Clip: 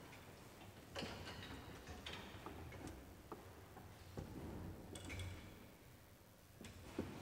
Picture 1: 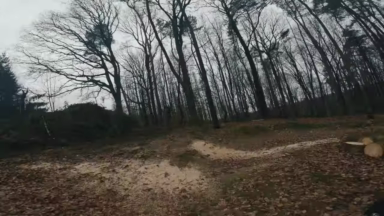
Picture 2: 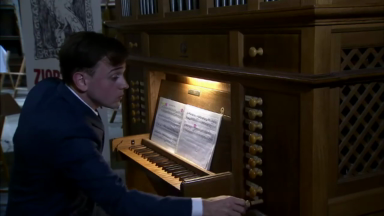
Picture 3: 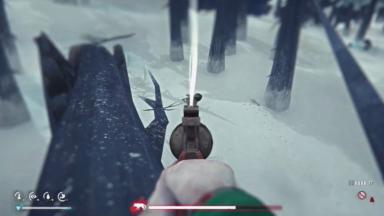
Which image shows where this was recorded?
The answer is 2